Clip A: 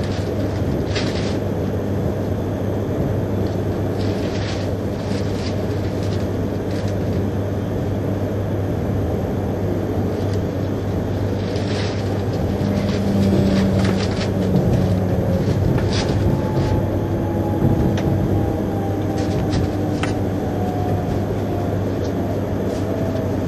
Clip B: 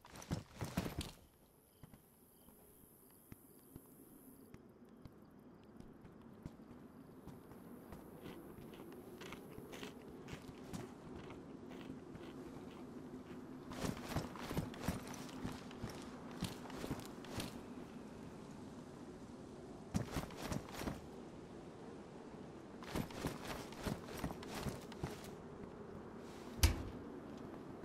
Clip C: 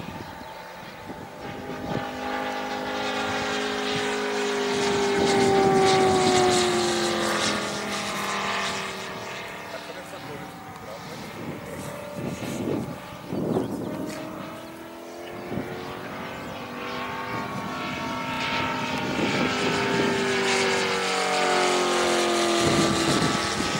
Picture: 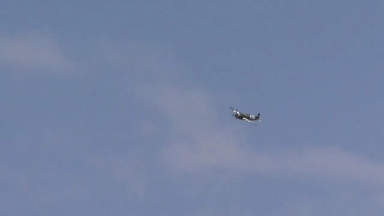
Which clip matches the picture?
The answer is C